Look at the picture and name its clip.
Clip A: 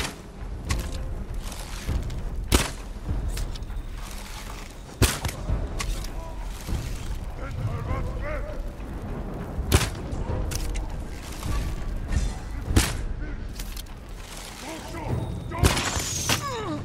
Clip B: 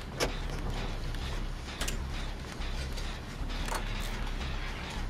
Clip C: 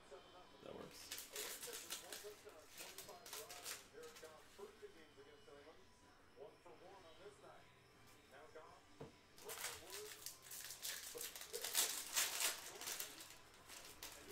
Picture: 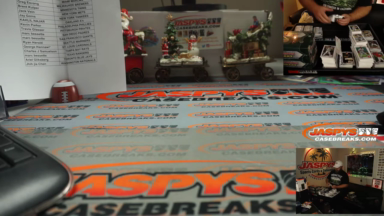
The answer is C